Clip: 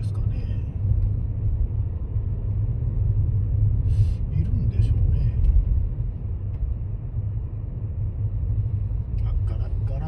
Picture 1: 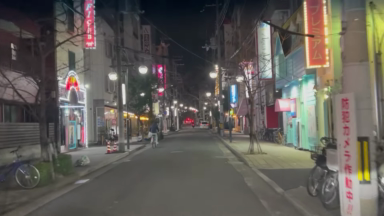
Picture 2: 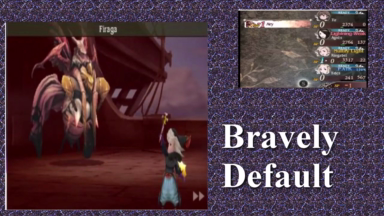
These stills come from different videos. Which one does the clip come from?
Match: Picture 1